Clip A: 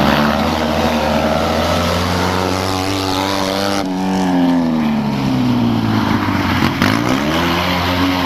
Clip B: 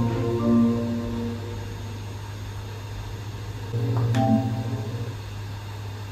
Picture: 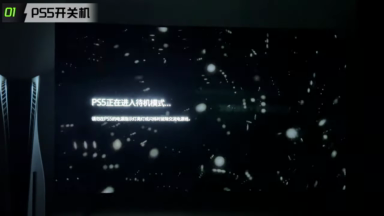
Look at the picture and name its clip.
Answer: B